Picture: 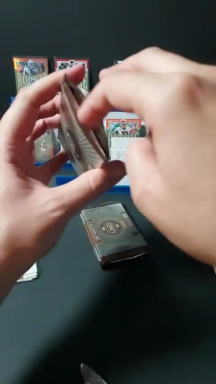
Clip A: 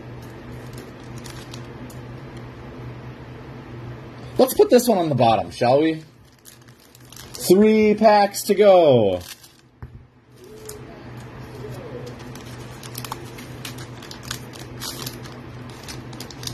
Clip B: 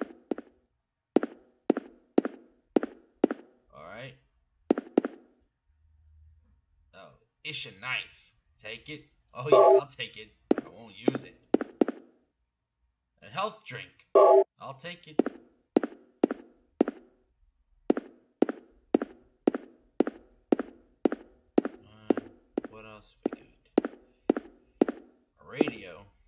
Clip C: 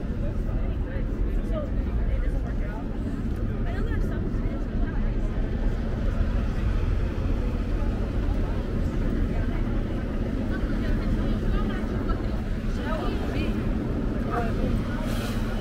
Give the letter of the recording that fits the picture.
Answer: A